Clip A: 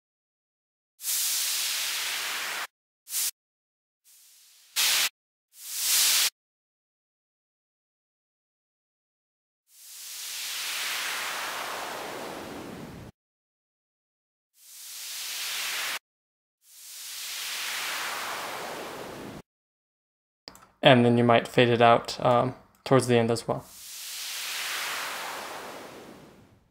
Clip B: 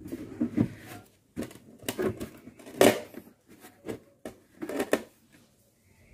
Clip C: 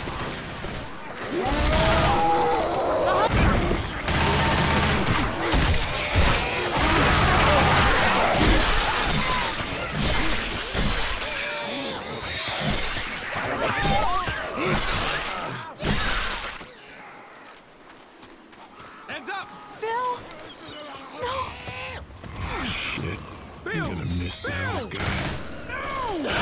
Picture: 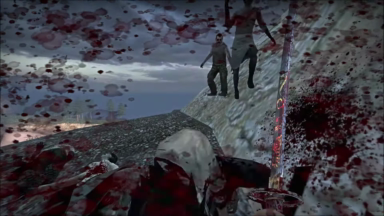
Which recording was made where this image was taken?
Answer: C